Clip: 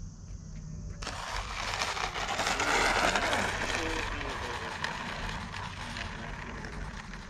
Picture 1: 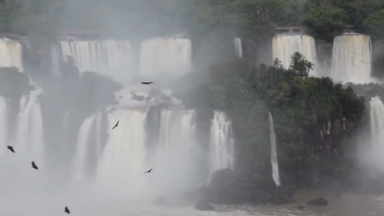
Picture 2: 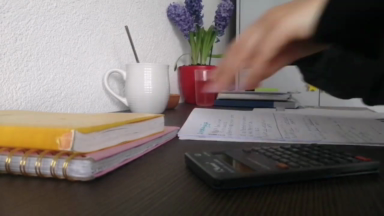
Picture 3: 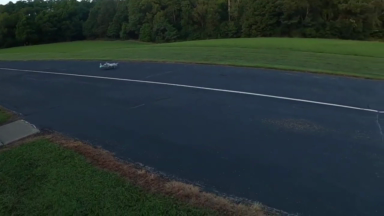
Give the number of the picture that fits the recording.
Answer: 3